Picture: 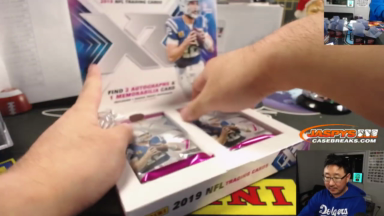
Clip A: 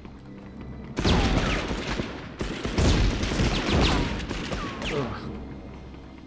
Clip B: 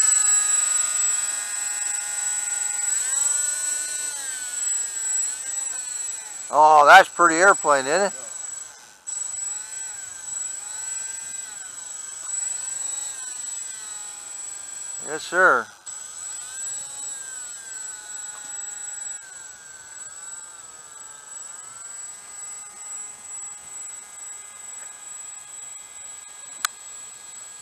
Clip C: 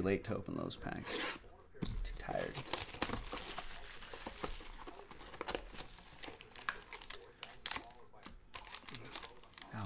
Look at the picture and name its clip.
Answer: C